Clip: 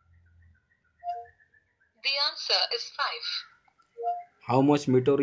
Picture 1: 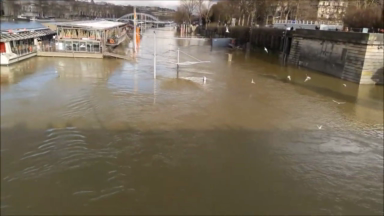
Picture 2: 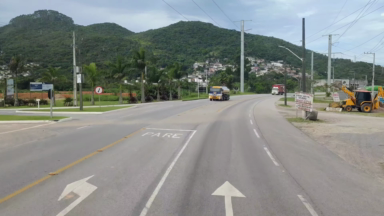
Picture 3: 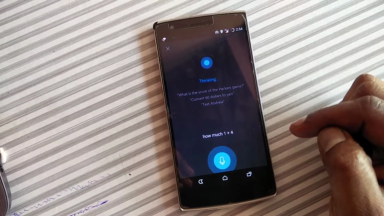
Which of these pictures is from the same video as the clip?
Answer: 3